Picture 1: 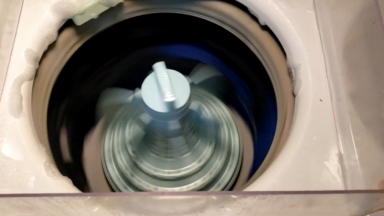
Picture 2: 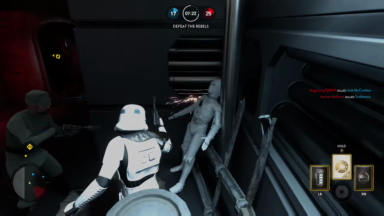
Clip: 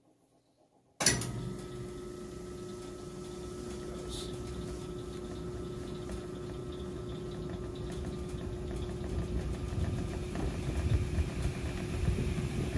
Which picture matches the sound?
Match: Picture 1